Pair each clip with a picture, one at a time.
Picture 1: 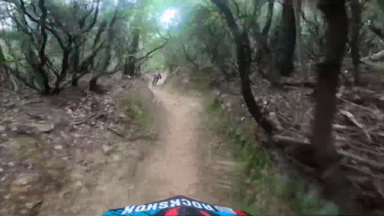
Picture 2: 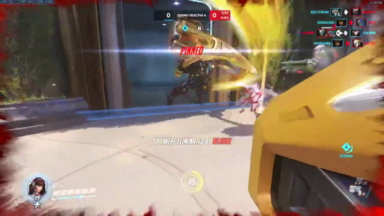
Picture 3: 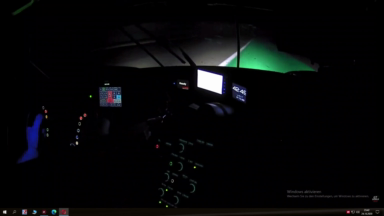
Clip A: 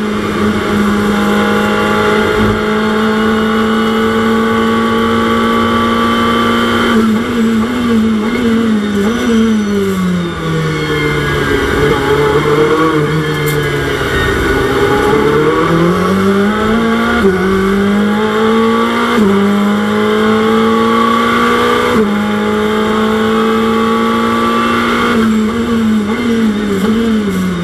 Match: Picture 3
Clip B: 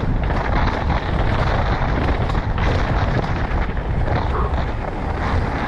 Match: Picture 1